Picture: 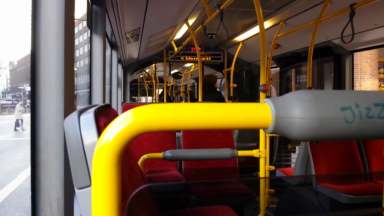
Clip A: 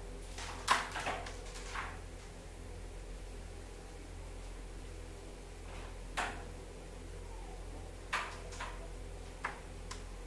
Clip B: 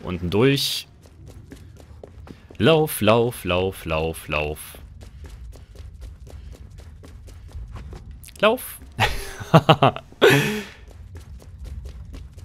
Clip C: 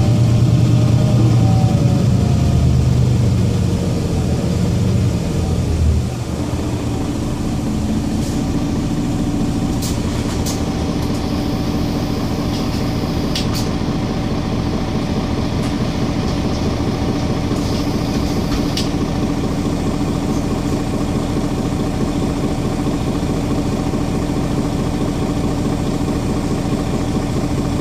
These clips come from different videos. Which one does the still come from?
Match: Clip C